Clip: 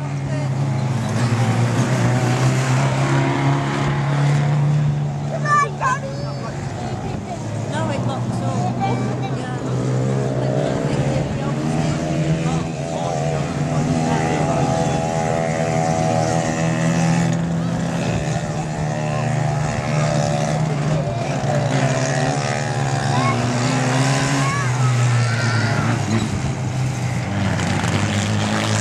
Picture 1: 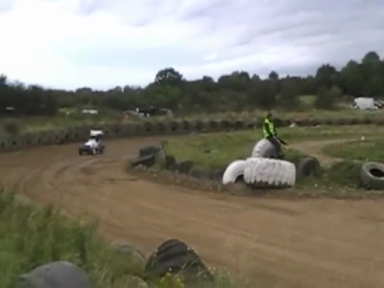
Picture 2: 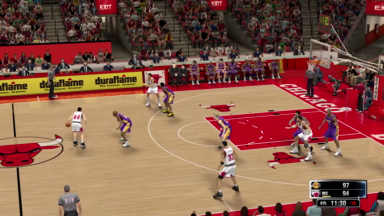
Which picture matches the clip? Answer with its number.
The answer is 1